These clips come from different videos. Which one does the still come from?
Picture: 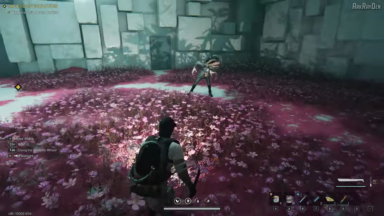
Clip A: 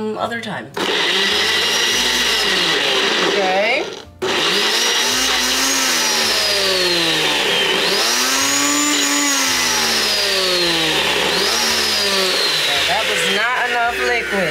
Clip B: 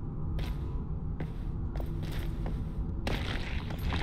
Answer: B